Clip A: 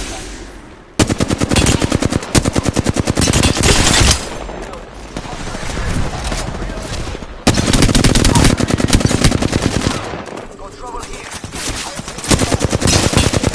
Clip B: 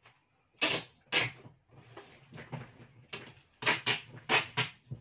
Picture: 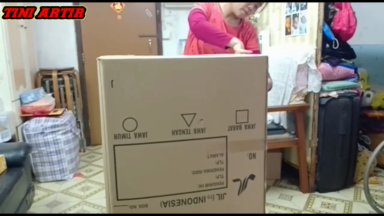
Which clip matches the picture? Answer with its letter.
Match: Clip B